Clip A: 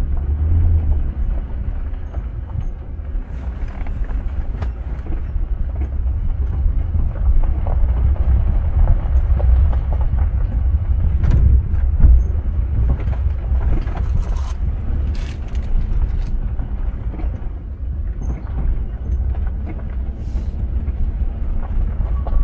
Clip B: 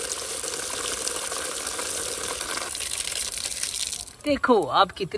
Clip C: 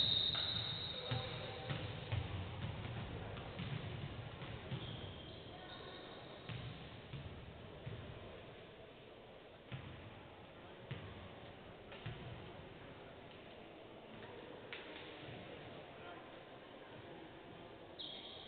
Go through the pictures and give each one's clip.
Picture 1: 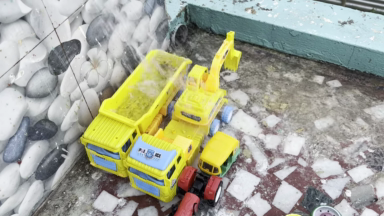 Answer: B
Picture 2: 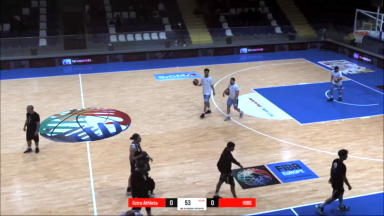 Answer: C